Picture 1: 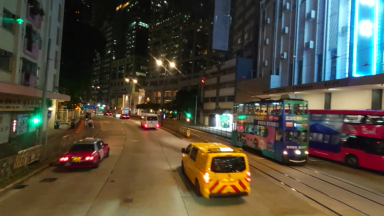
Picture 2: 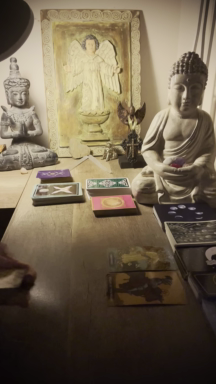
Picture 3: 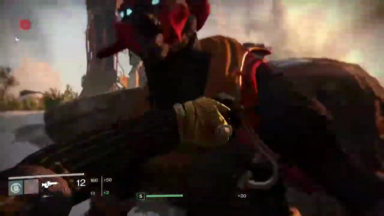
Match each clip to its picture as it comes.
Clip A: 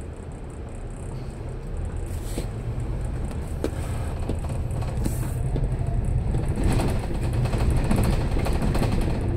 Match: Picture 1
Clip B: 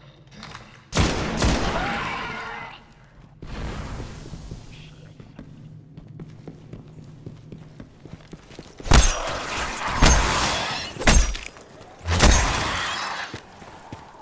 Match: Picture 3